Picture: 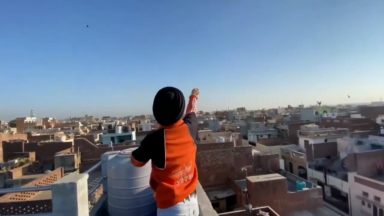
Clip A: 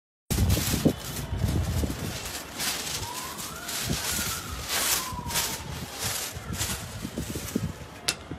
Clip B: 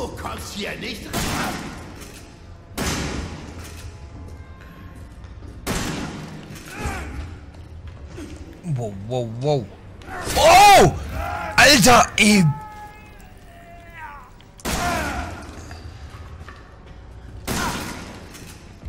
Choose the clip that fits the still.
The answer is A